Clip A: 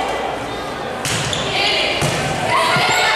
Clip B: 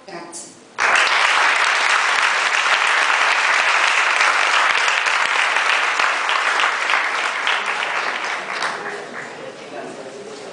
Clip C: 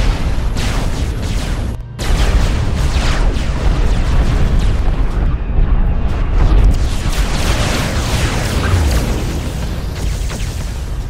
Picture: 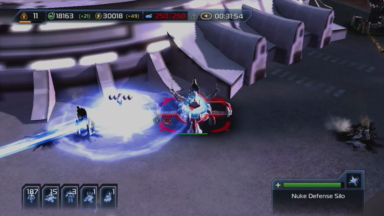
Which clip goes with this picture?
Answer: C